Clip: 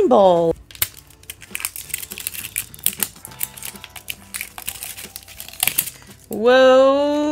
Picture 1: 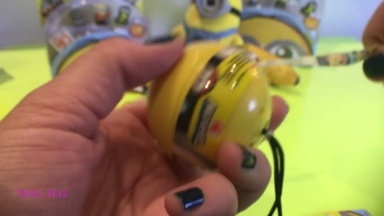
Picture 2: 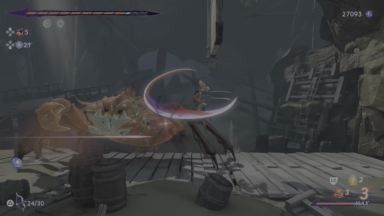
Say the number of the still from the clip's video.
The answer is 1